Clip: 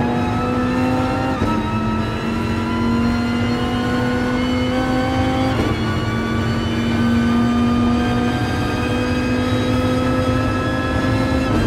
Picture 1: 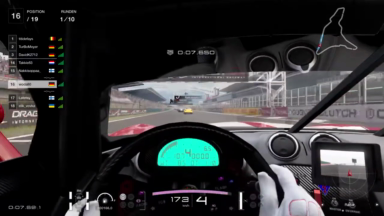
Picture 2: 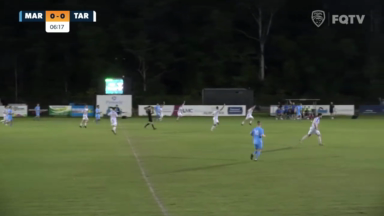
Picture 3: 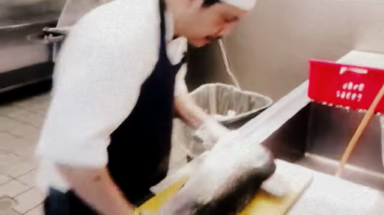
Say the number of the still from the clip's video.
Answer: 1